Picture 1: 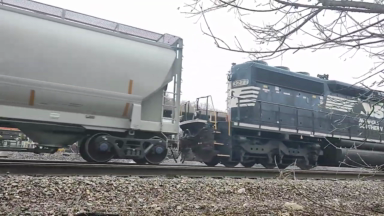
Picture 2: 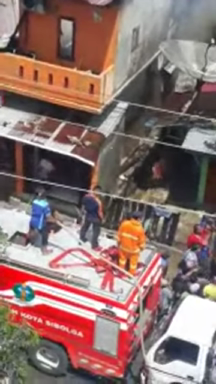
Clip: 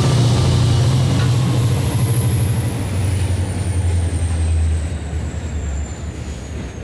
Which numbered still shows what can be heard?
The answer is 1